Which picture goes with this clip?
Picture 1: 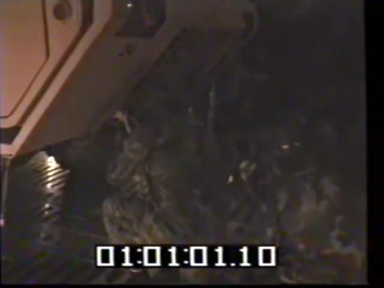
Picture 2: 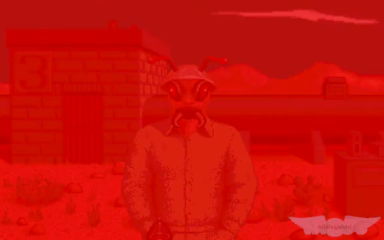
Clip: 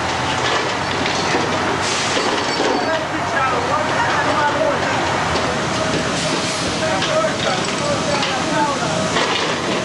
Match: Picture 1